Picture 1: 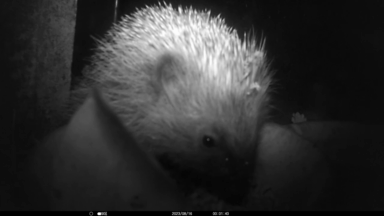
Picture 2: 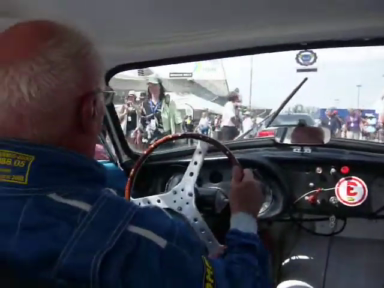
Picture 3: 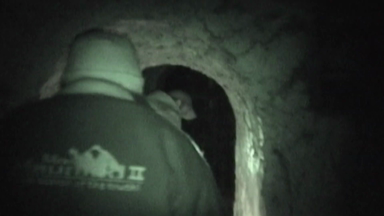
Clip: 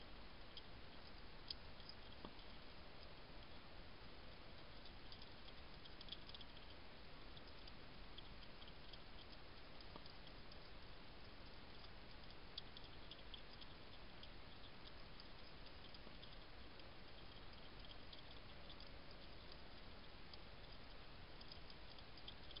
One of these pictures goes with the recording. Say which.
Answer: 1